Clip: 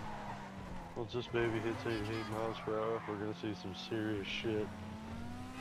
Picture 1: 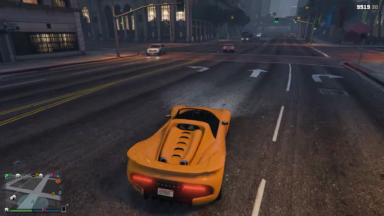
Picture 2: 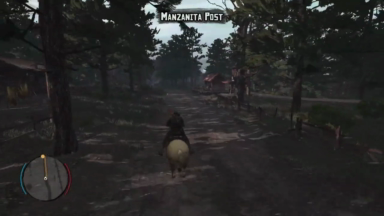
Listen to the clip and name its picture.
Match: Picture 1